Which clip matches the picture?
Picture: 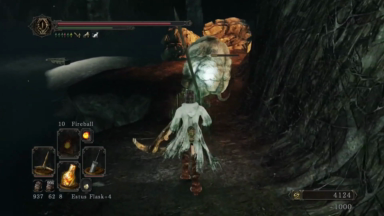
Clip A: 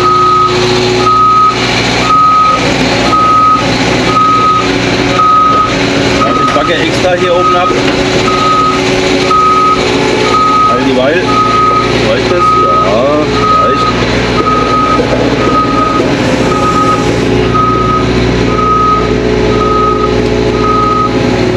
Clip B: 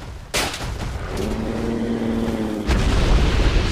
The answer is B